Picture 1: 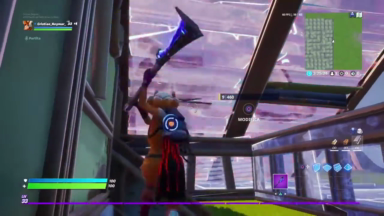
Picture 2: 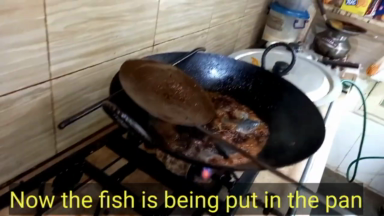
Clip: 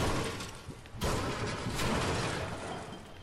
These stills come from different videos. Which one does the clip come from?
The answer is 1